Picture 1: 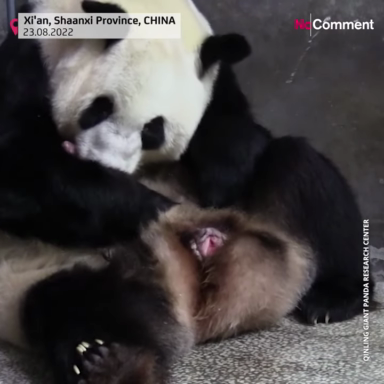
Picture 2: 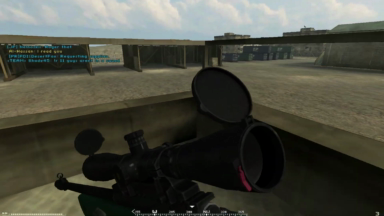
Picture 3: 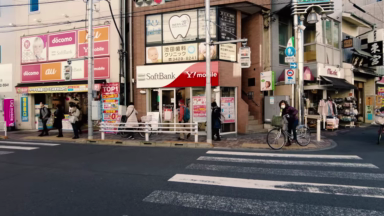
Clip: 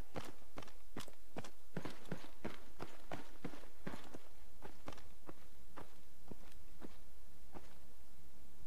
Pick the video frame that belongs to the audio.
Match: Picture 2